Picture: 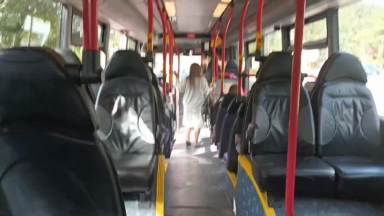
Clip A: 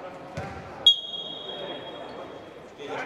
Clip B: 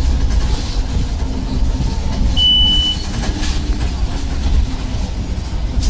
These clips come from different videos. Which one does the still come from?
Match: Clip B